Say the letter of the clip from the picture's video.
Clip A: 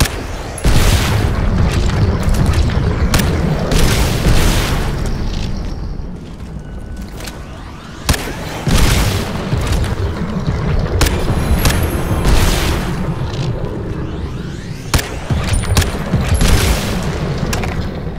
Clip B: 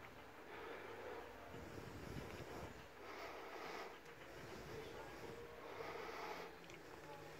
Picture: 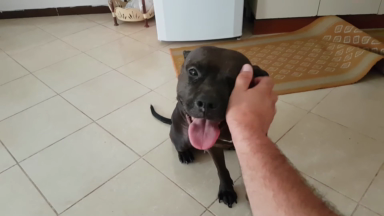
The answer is B